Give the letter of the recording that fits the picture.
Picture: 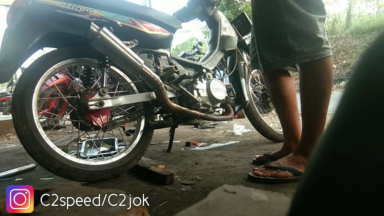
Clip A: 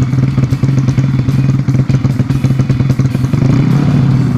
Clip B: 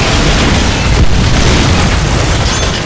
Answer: A